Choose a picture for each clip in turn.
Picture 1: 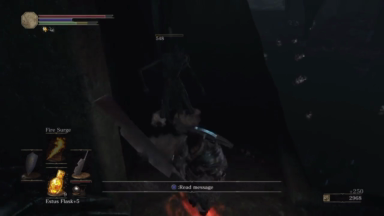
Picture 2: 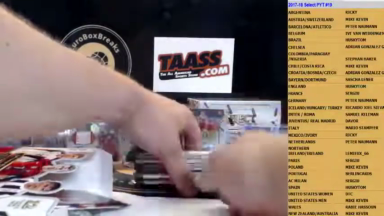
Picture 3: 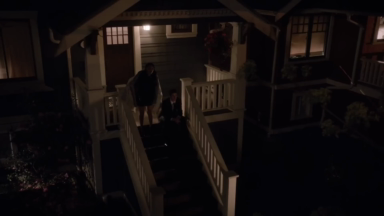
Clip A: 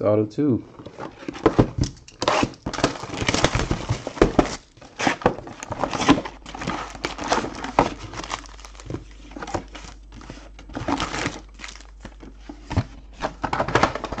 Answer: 2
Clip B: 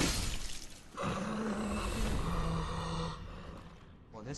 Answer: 1